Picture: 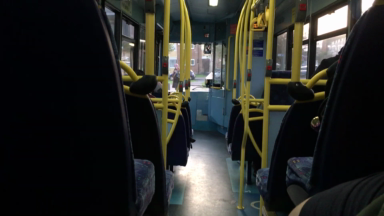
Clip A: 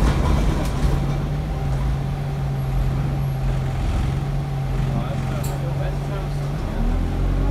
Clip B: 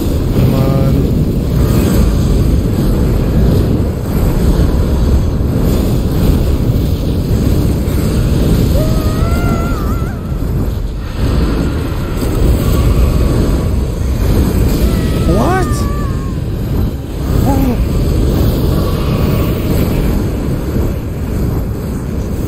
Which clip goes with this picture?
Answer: A